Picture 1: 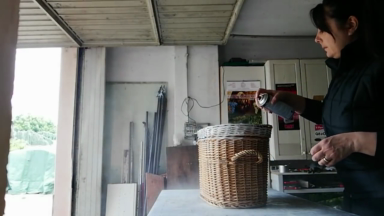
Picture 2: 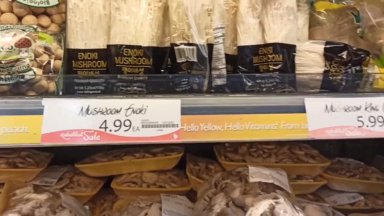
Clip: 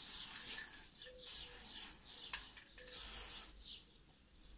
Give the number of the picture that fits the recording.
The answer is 1